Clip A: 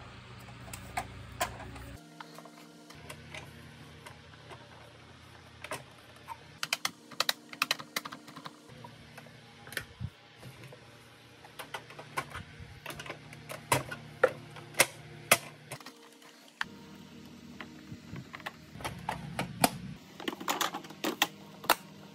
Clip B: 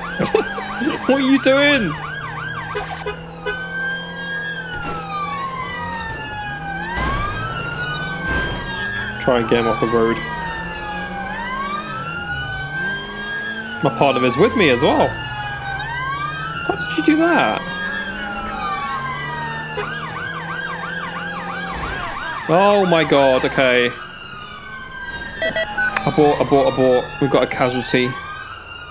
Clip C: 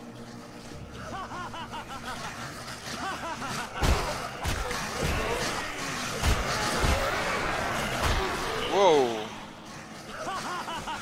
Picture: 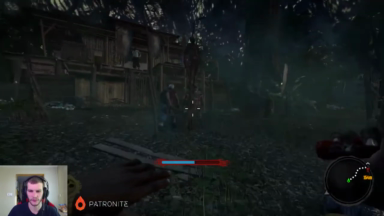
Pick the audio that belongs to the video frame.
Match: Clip C